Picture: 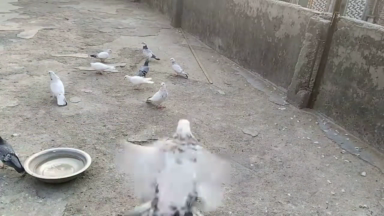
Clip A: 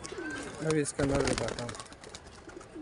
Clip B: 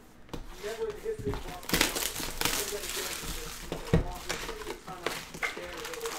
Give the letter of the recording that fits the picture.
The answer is A